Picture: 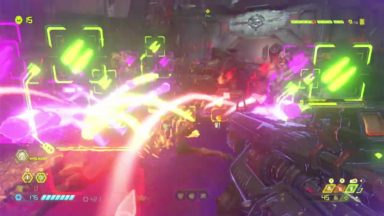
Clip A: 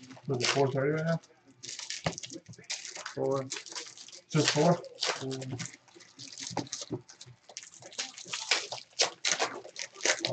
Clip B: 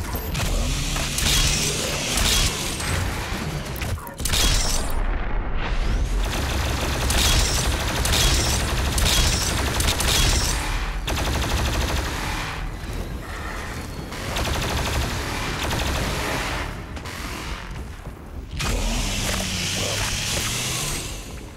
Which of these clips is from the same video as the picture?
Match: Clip B